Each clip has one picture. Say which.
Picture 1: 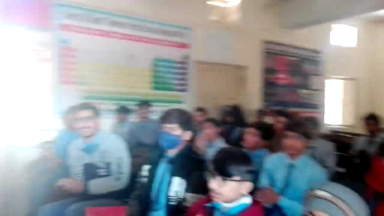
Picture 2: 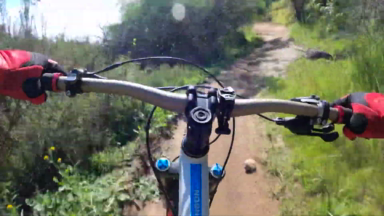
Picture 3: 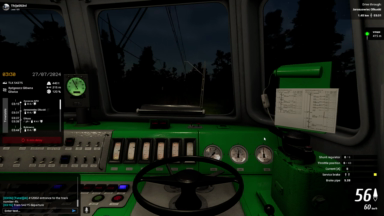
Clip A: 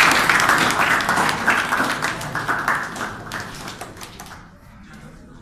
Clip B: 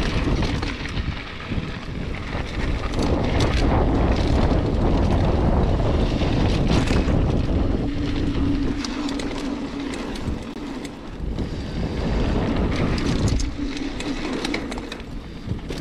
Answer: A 1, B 2